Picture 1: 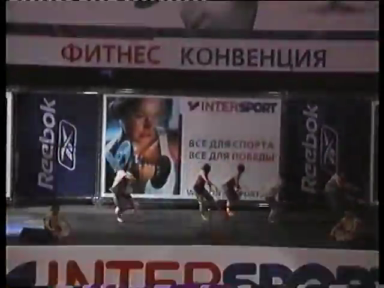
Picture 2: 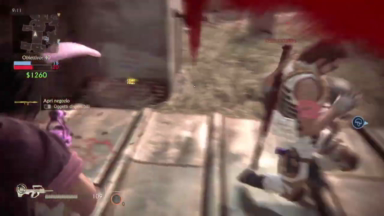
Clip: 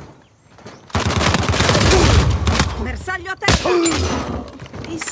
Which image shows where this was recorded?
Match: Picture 2